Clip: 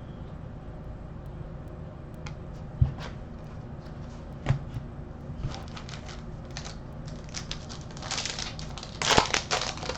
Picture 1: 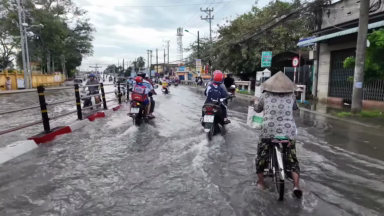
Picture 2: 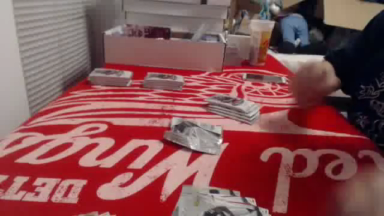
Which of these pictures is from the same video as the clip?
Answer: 2